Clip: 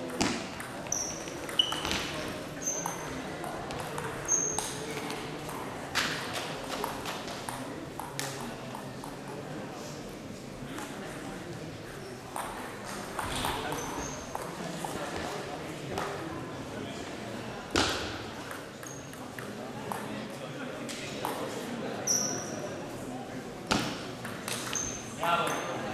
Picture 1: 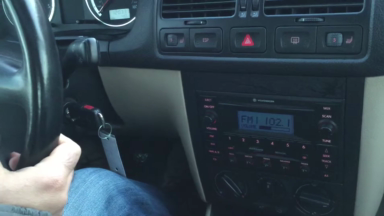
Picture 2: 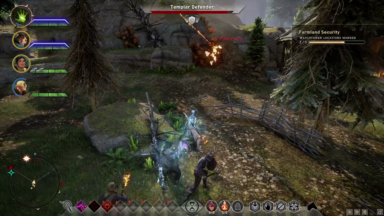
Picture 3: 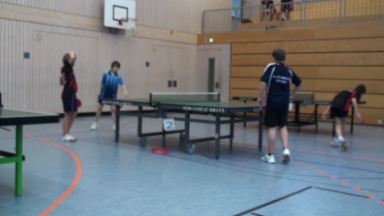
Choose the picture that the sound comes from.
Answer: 3